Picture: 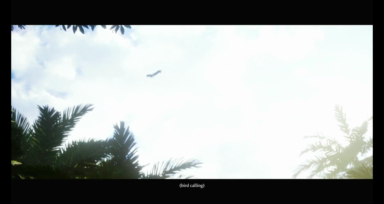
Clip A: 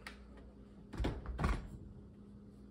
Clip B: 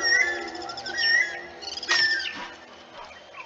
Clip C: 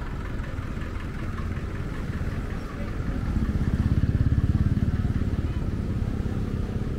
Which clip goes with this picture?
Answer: B